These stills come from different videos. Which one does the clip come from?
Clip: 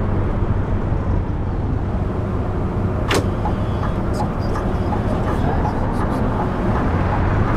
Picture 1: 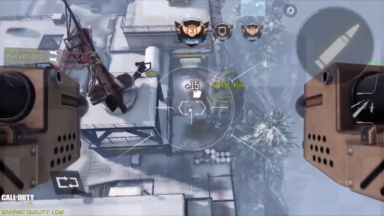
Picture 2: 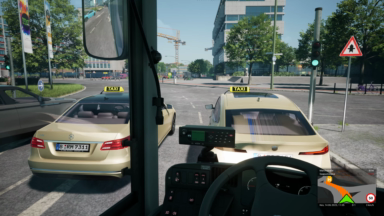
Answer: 2